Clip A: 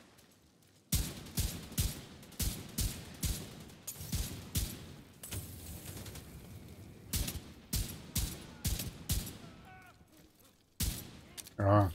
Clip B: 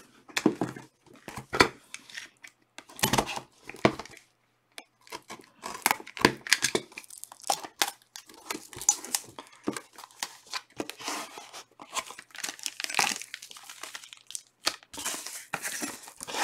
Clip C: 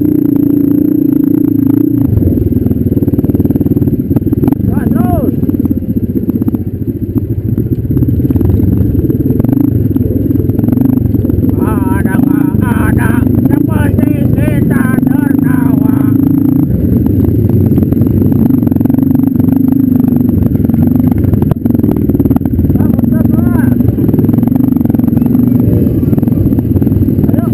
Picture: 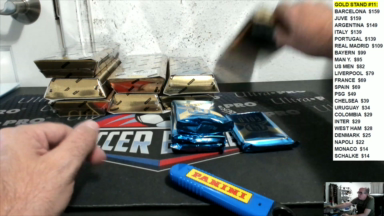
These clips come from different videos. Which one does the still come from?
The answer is B